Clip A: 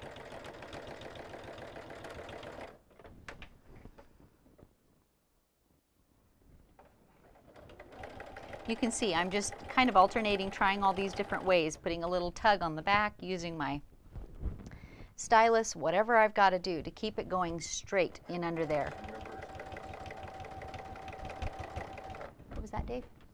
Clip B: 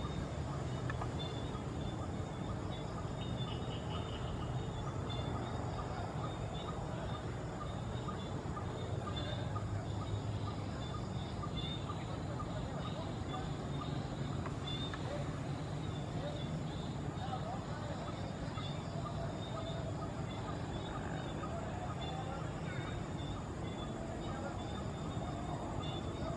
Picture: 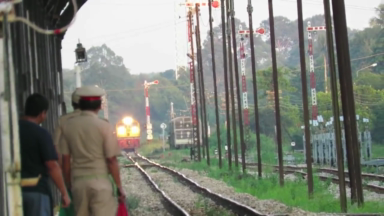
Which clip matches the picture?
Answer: B